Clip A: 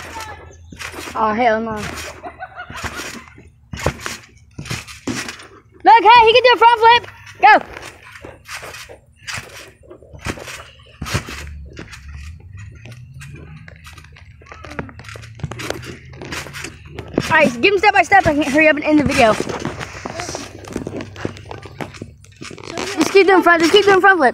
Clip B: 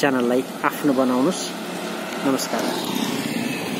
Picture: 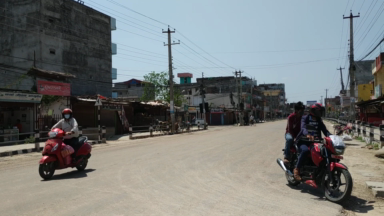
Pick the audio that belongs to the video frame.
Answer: B